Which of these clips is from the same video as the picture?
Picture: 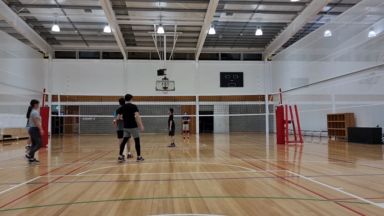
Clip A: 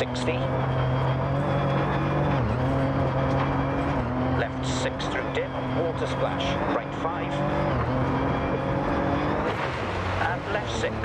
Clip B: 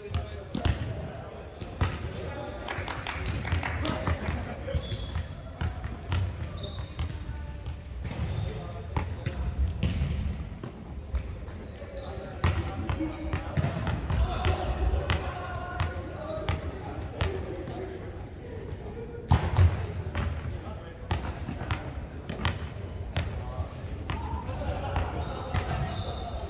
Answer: B